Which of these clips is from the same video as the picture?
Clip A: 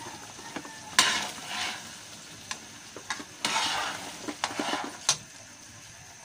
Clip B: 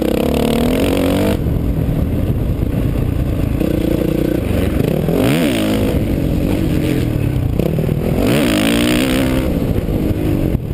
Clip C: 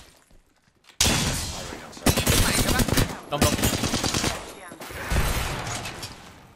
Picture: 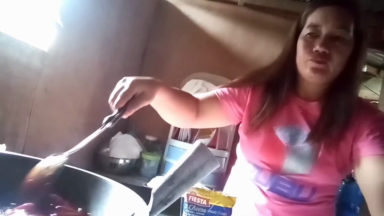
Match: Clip A